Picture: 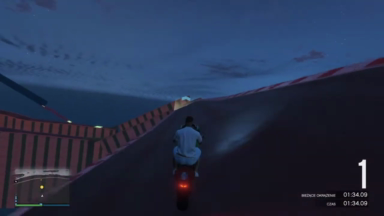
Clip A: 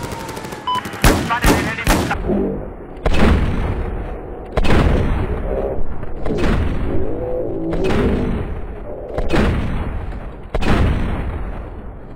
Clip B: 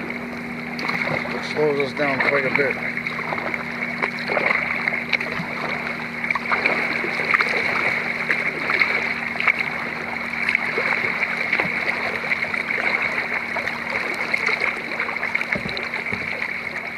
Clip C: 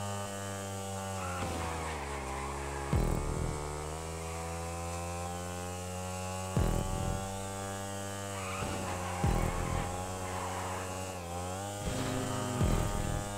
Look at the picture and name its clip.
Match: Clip C